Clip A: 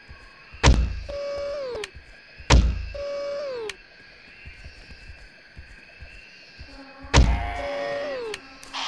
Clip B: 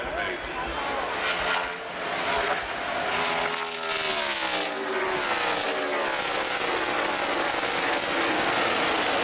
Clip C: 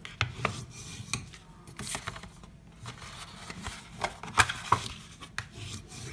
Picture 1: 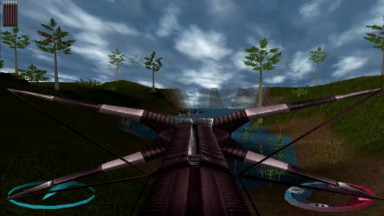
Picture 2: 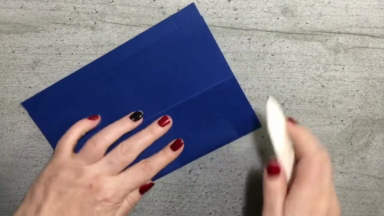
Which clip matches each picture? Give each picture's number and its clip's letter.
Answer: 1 A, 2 C